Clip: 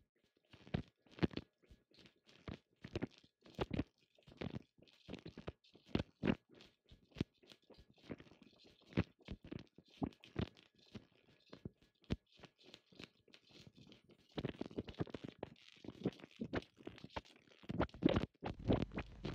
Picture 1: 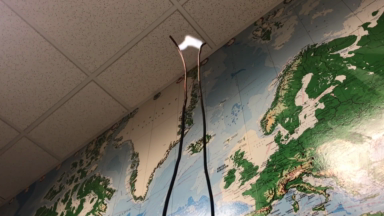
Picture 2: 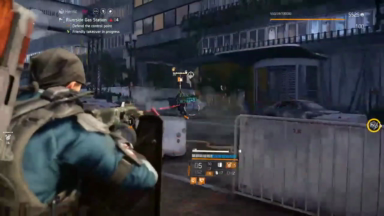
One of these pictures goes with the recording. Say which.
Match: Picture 1